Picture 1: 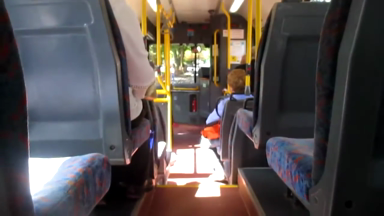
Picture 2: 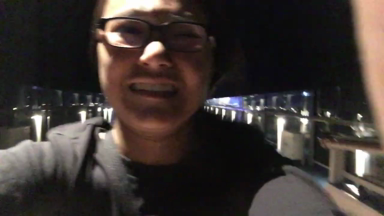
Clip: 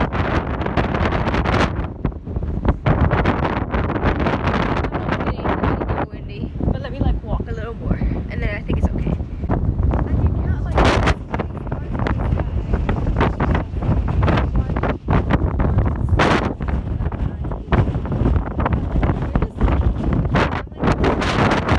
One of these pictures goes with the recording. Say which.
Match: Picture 2